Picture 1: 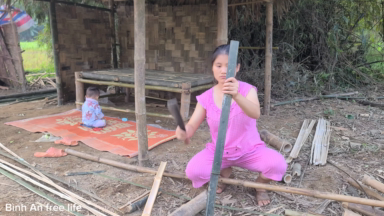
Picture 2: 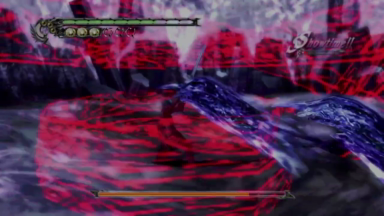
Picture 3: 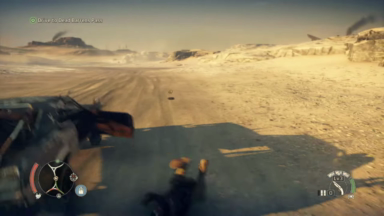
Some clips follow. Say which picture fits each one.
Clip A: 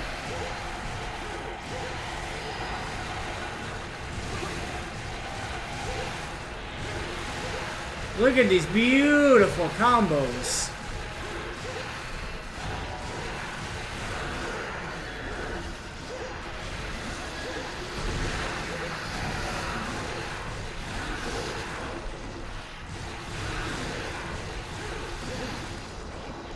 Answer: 2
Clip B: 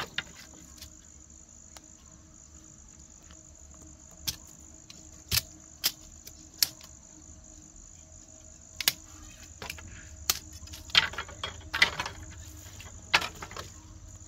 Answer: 1